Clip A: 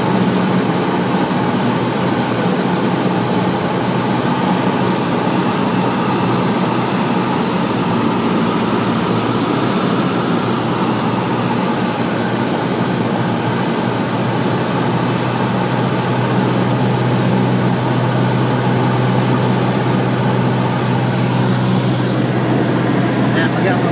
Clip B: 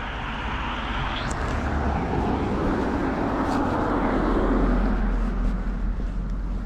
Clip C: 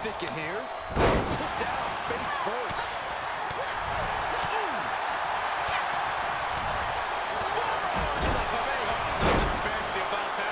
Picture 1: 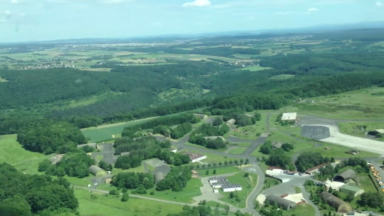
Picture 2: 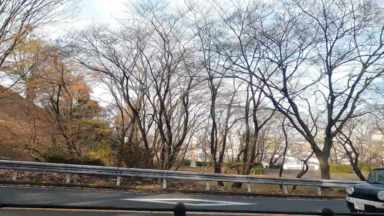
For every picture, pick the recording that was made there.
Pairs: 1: A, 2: B